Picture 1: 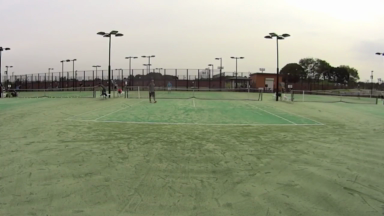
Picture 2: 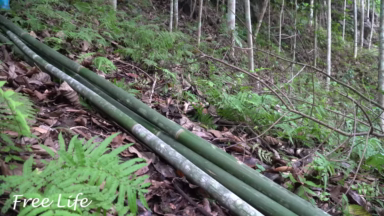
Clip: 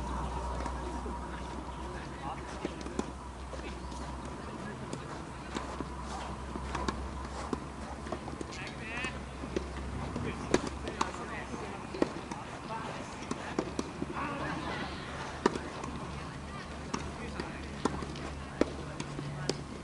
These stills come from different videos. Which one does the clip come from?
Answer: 1